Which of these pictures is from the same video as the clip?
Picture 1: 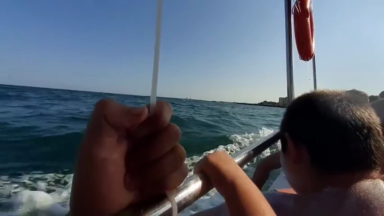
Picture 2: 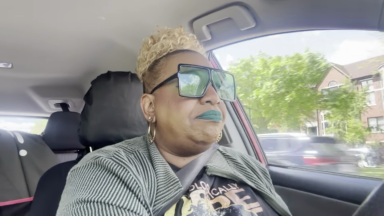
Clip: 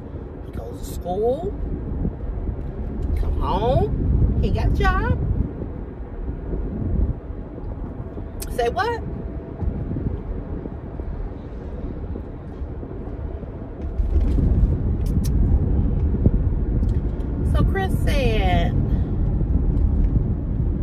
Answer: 2